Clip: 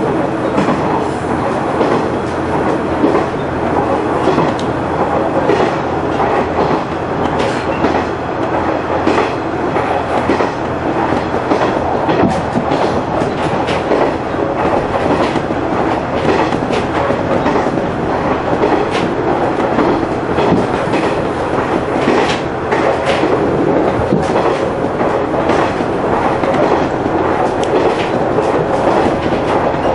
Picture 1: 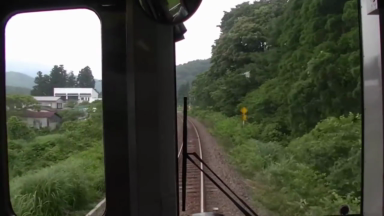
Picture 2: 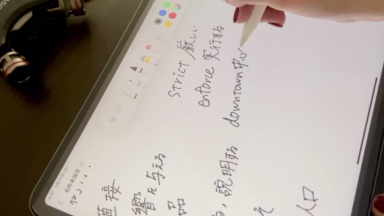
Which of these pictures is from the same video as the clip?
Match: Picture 1